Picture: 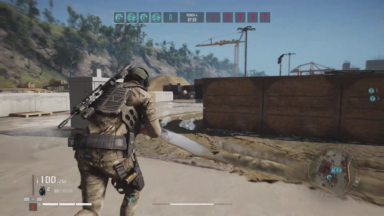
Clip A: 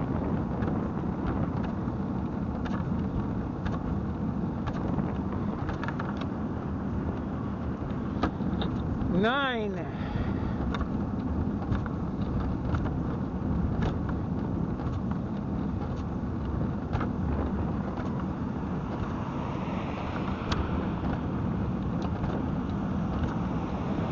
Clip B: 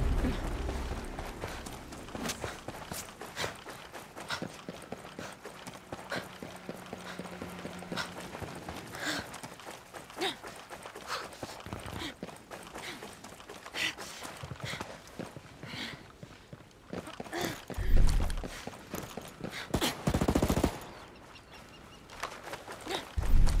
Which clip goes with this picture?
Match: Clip B